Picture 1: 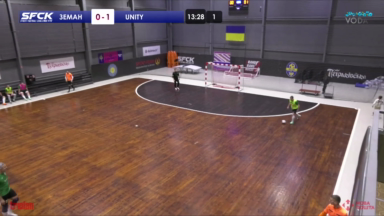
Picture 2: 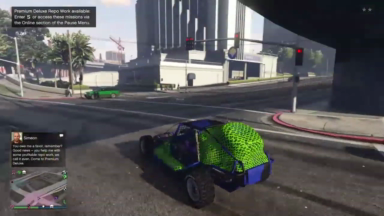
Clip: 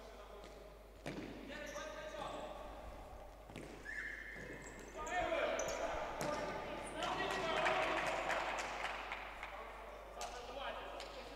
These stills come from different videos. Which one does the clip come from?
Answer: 1